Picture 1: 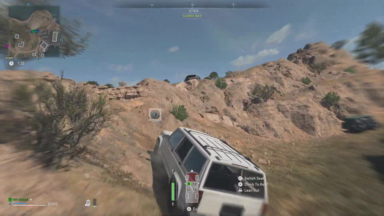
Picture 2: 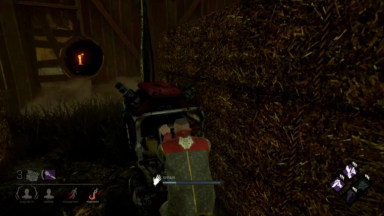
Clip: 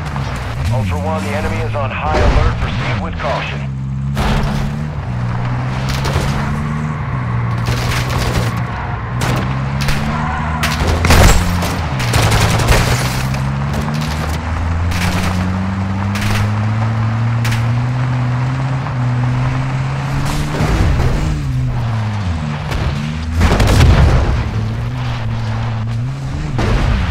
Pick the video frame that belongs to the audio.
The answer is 1